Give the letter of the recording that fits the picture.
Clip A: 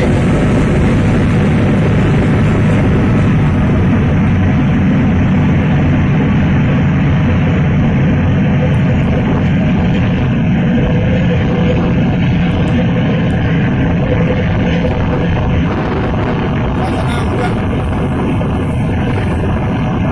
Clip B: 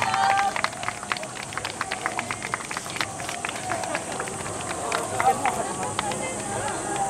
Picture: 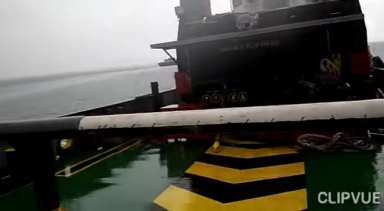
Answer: A